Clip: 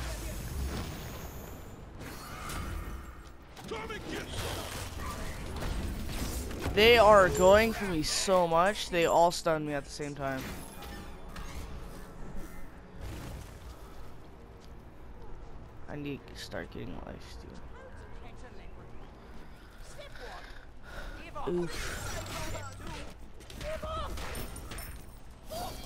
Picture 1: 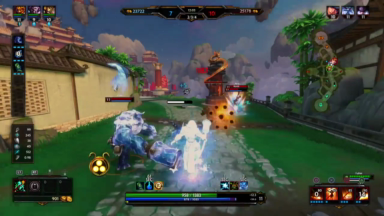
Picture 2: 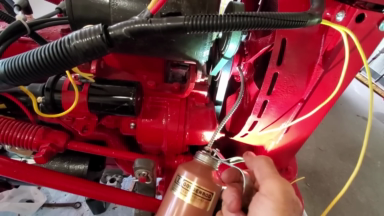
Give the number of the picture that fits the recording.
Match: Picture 1